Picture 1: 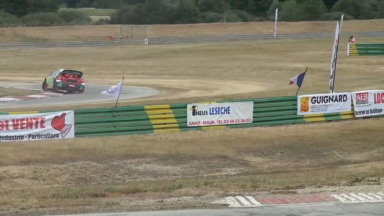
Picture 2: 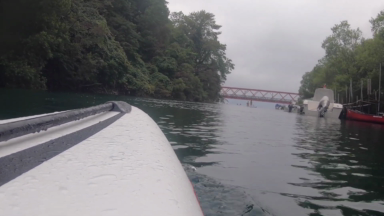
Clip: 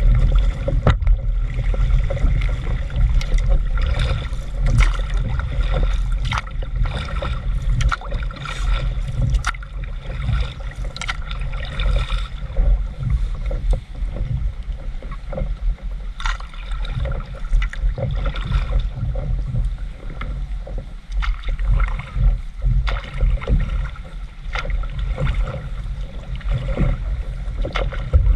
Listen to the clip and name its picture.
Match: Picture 2